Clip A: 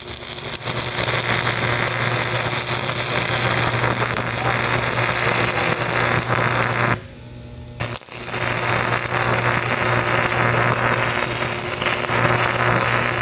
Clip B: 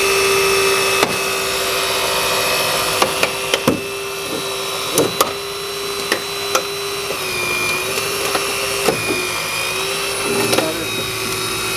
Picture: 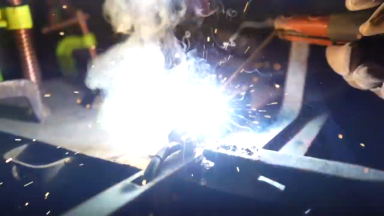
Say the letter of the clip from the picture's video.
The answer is A